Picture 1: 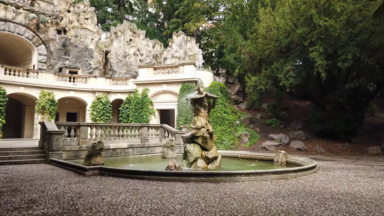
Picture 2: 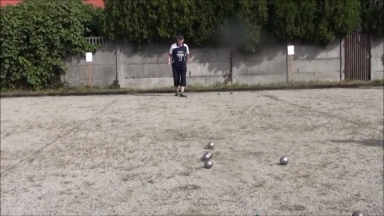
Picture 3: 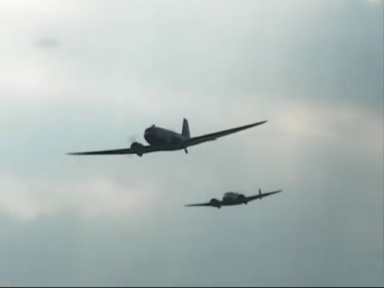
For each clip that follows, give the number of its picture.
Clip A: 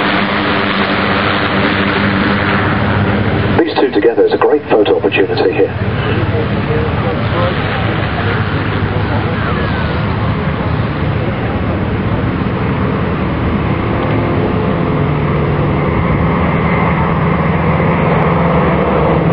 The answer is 3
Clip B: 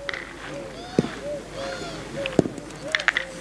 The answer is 2